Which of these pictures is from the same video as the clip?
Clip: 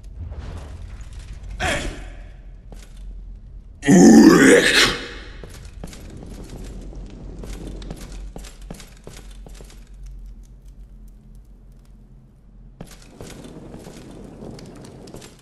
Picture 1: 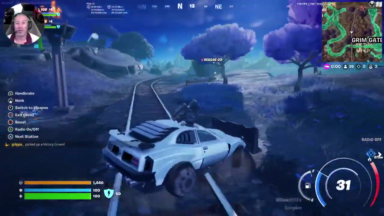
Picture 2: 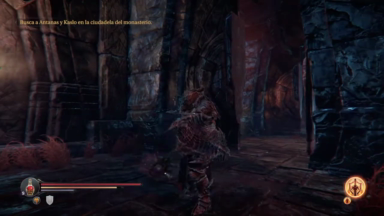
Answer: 2